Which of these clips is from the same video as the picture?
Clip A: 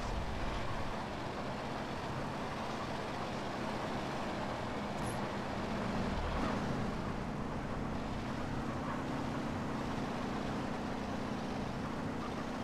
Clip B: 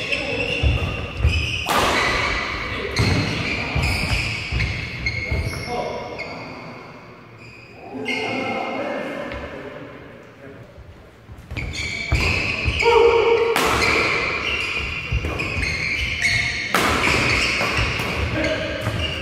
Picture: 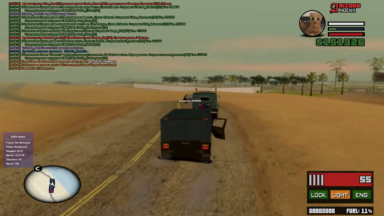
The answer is A